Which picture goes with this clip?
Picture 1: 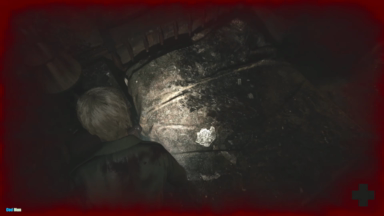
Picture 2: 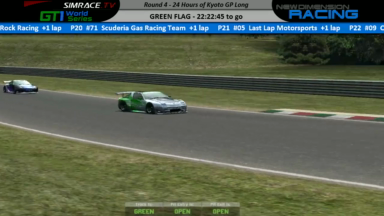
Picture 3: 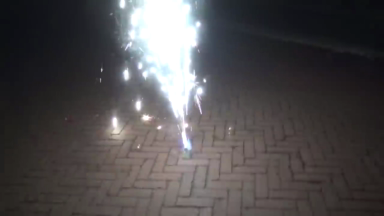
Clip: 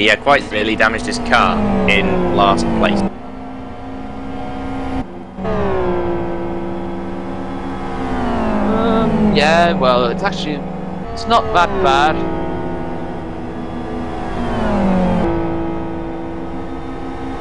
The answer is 2